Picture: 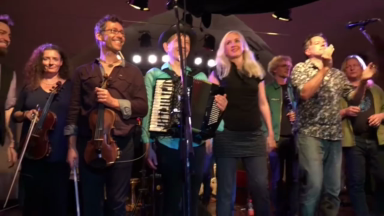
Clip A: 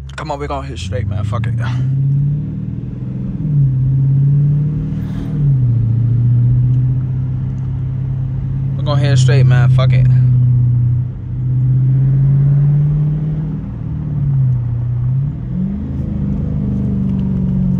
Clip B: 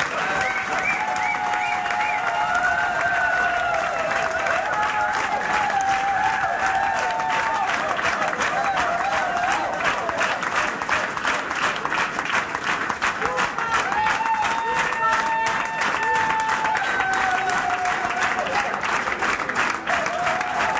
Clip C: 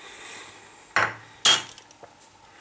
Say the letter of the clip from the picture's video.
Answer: B